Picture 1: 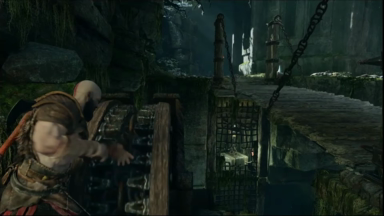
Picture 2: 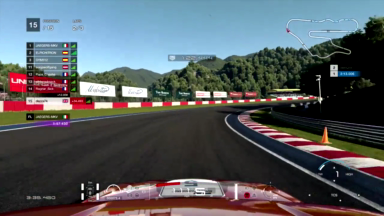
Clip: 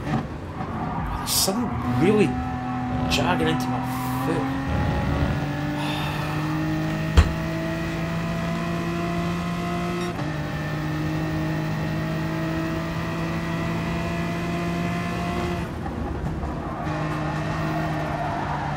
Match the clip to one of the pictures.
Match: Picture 2